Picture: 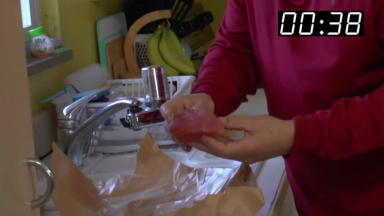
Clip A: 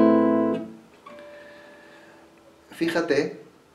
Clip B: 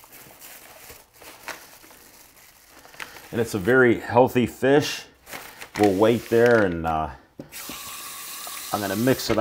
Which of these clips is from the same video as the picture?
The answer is B